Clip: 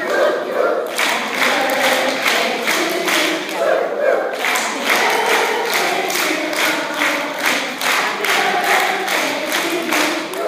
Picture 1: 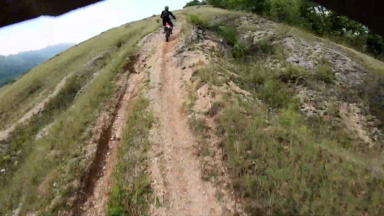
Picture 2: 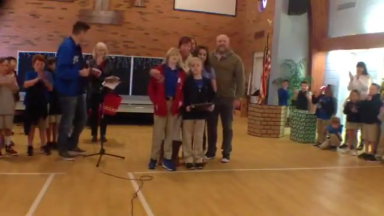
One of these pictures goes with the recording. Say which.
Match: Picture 2